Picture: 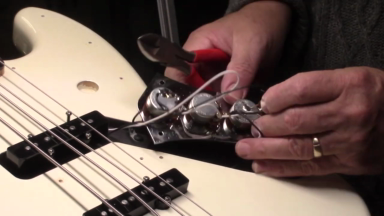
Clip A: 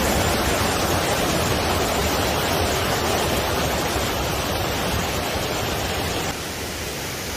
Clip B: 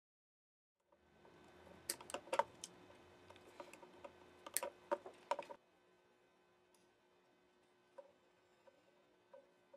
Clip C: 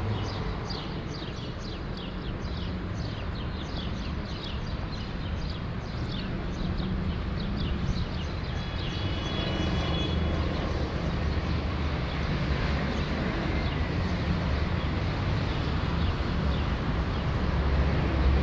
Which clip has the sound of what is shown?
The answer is B